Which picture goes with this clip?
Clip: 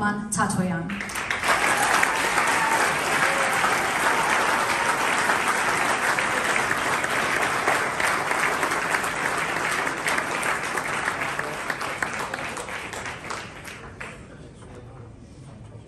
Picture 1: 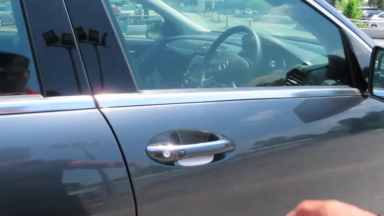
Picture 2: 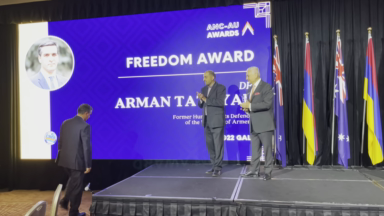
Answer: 2